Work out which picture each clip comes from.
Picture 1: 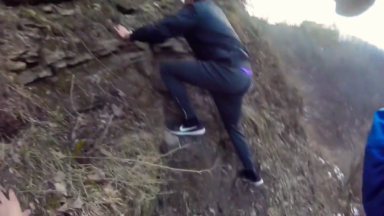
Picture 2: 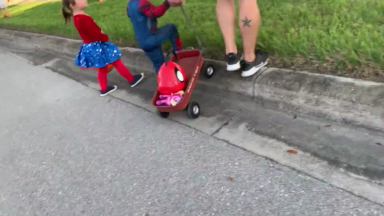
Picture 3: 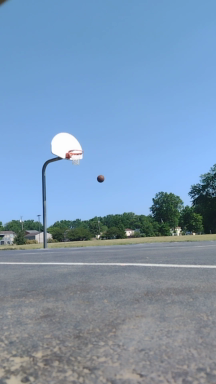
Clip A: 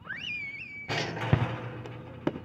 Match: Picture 3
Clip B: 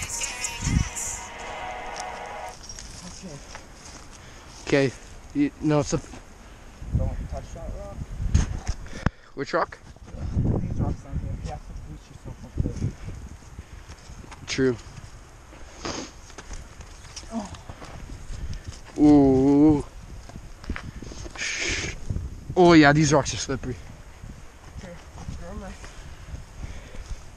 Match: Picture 1